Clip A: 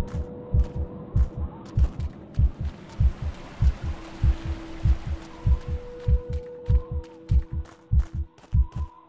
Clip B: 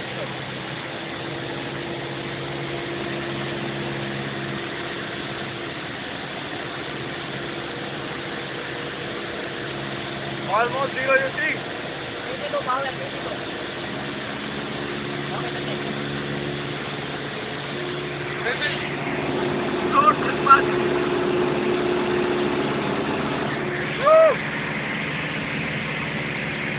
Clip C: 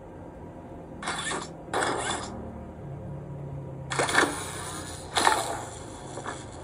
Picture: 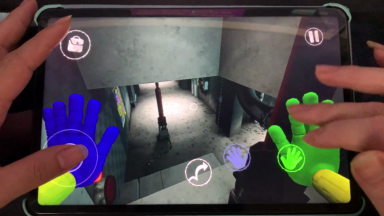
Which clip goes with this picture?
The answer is C